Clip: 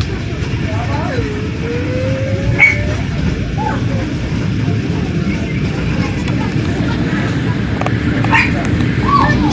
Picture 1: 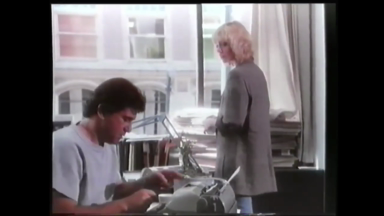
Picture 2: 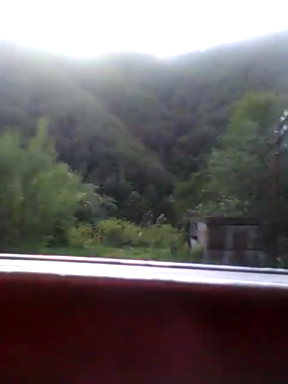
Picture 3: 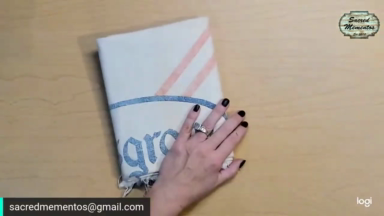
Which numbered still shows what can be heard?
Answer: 2